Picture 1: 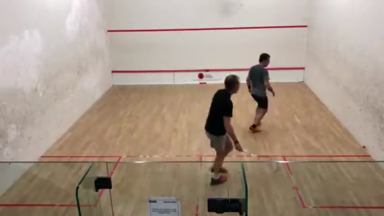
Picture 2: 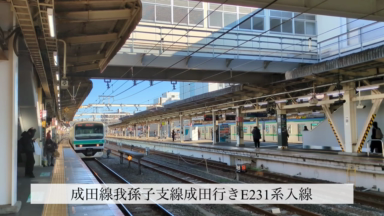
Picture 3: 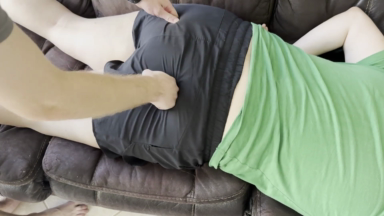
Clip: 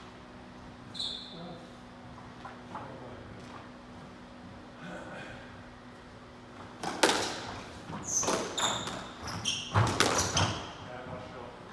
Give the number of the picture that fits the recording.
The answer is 1